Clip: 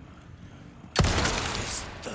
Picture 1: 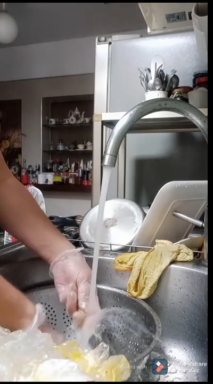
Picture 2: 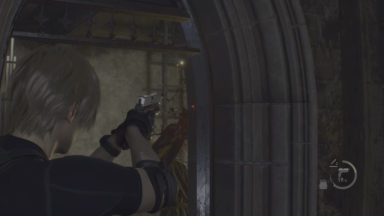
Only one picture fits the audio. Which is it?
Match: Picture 2